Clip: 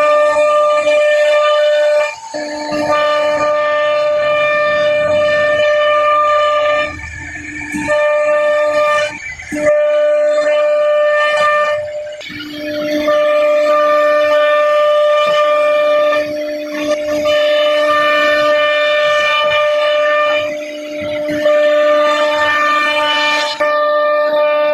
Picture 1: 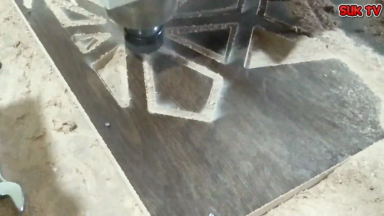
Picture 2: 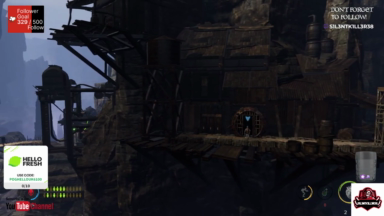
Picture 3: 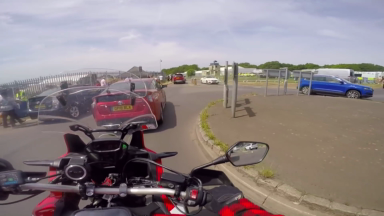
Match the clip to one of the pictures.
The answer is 1